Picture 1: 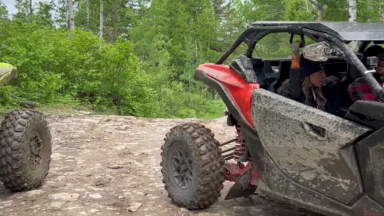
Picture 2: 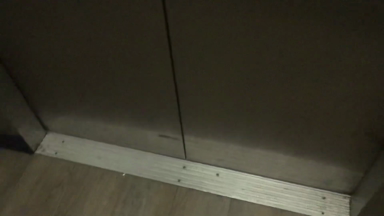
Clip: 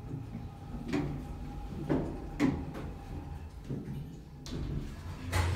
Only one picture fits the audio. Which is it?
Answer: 2